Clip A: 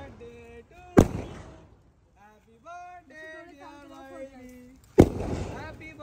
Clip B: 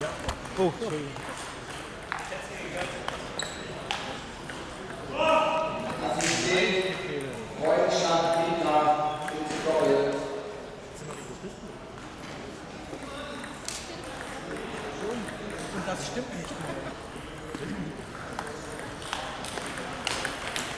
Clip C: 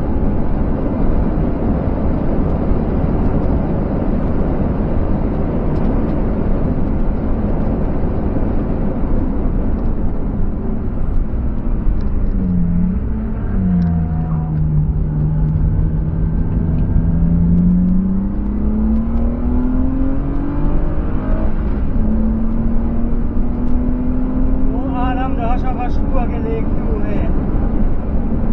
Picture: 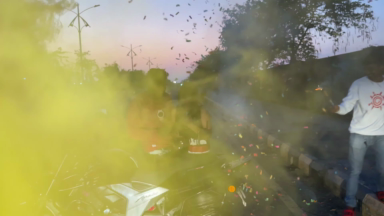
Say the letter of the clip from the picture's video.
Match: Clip A